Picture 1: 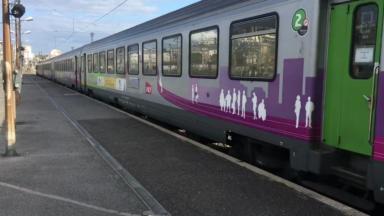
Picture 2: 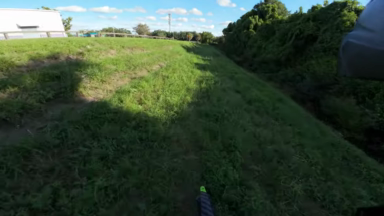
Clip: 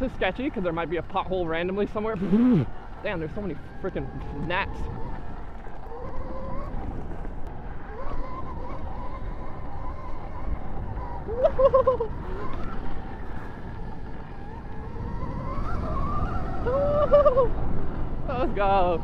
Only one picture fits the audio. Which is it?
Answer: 2